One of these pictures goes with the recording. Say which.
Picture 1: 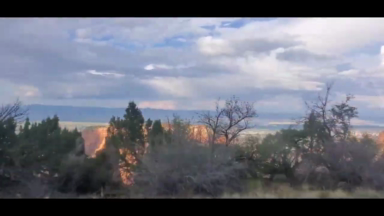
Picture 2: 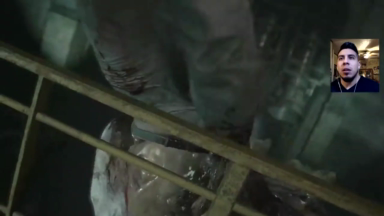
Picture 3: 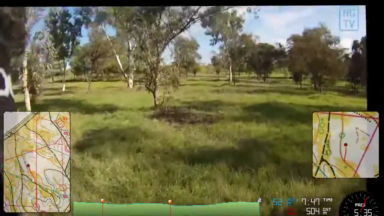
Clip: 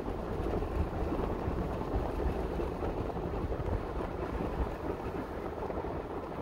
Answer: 1